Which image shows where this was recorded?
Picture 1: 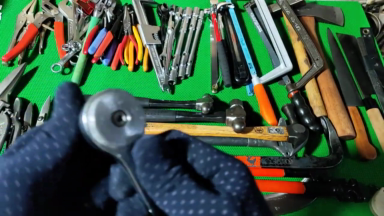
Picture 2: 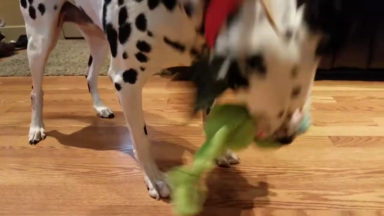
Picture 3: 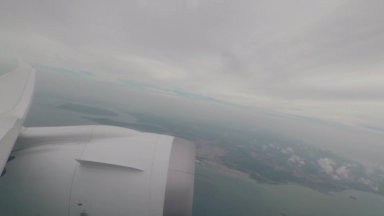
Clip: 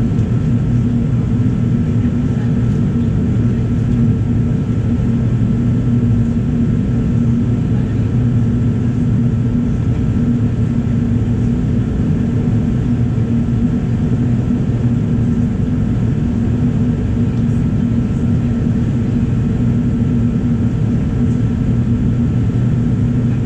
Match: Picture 3